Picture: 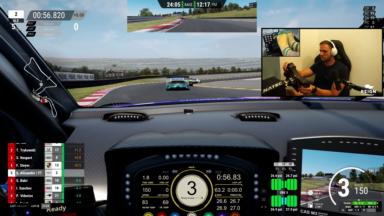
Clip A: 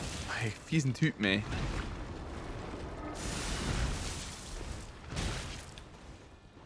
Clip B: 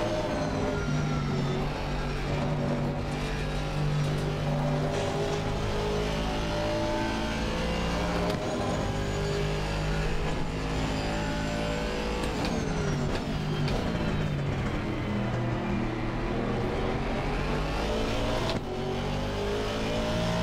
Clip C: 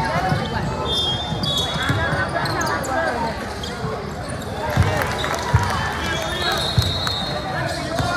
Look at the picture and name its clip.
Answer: B